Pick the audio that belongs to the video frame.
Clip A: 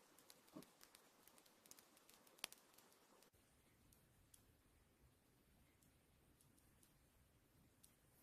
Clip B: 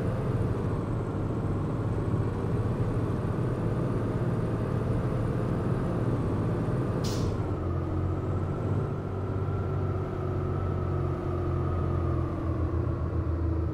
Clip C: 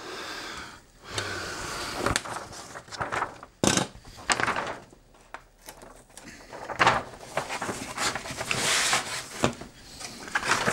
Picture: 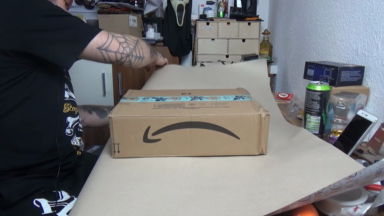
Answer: C